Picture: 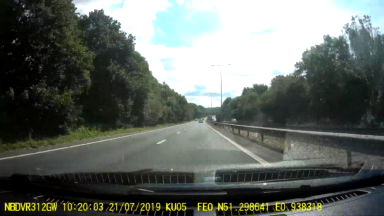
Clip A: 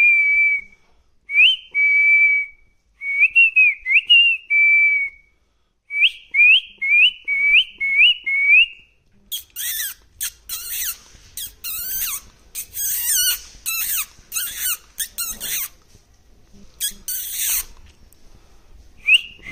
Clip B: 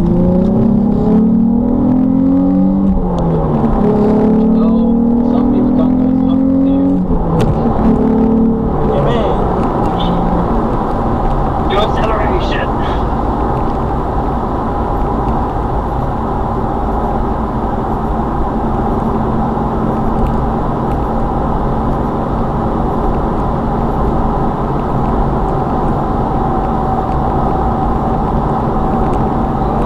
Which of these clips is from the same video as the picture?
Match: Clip B